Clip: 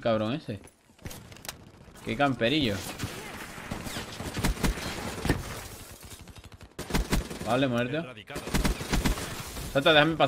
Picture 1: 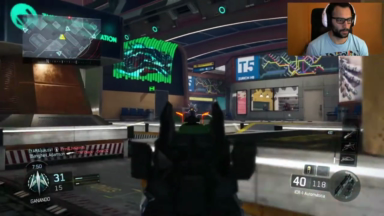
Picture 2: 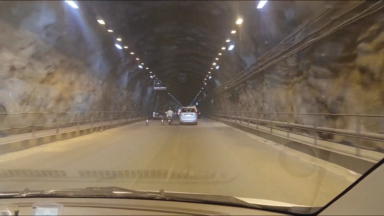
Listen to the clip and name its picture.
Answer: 1